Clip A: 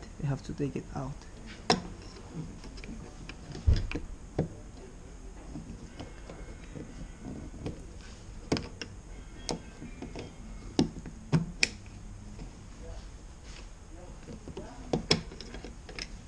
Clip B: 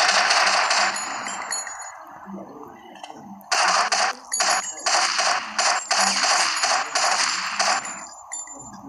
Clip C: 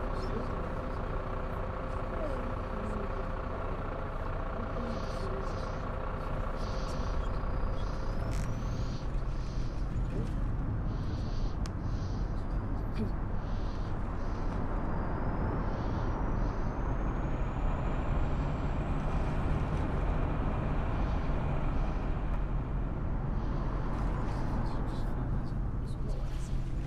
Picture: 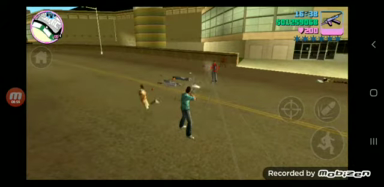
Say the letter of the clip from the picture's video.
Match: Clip B